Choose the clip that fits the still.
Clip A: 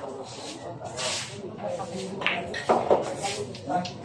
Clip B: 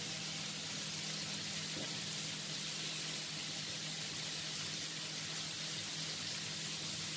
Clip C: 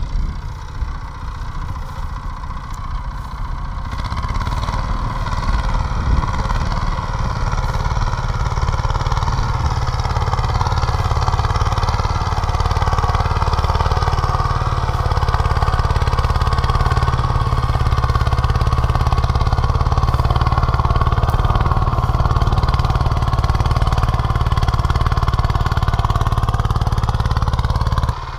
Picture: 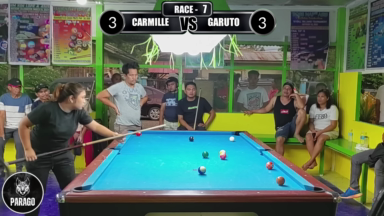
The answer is A